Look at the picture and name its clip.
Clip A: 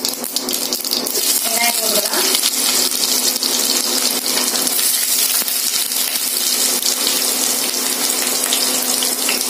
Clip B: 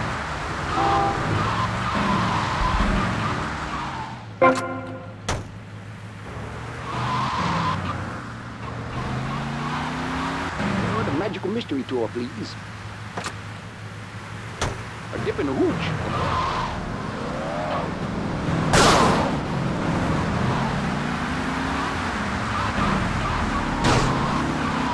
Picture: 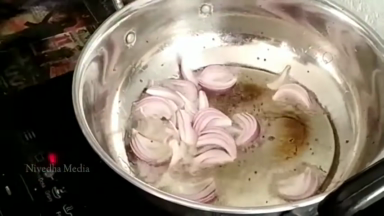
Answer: A